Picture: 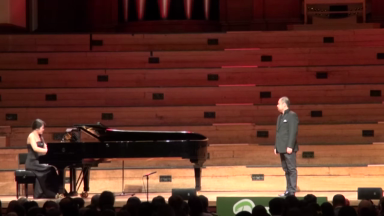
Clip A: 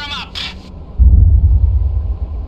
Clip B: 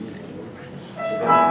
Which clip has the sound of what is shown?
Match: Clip B